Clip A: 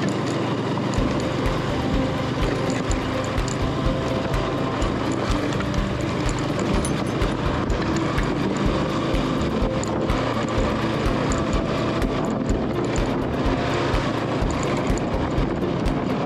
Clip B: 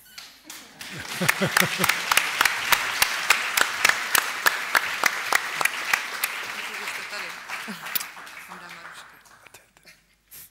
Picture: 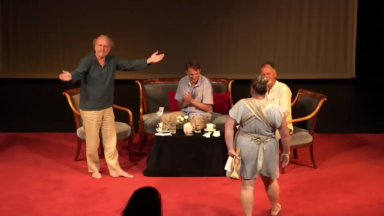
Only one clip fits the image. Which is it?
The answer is B